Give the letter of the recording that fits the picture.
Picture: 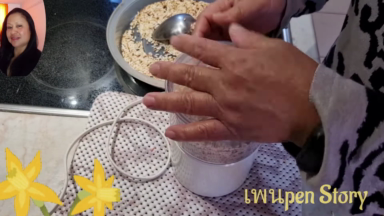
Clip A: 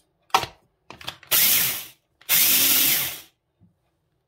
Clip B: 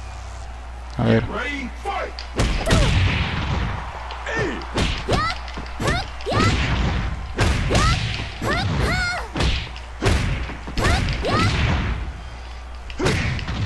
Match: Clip A